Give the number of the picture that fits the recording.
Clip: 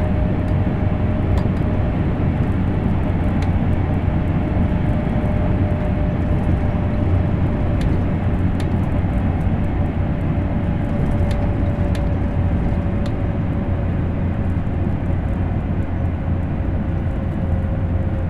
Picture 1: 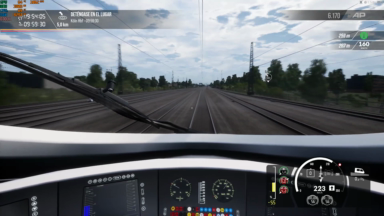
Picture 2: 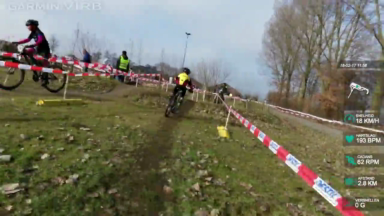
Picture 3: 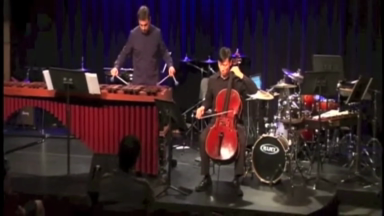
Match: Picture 1